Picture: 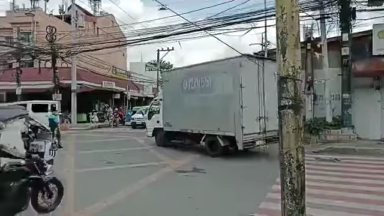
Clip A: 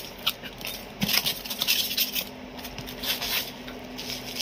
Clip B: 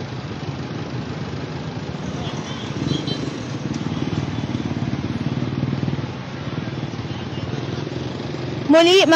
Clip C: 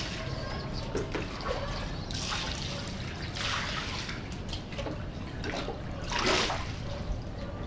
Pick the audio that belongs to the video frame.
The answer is B